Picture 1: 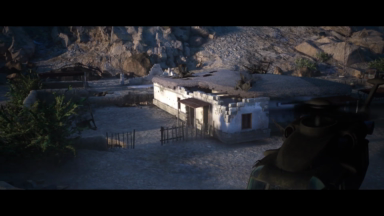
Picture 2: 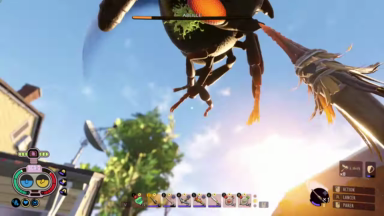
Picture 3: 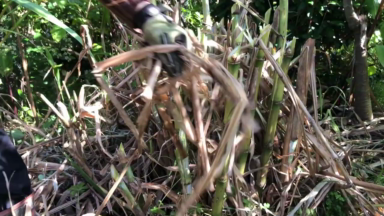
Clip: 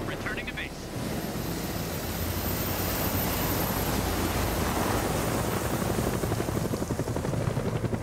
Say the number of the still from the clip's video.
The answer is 1